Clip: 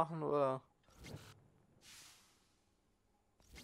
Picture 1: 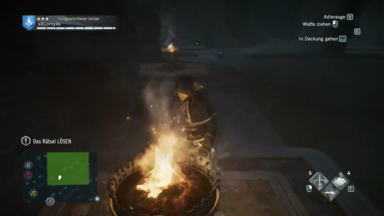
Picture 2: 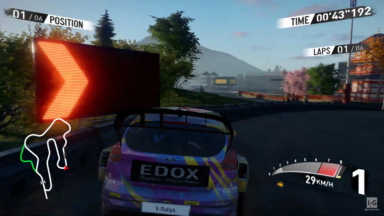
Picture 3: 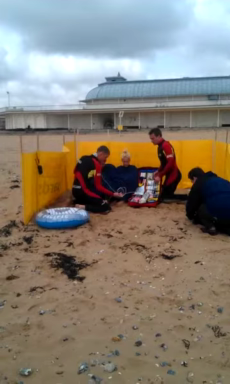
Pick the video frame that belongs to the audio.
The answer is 1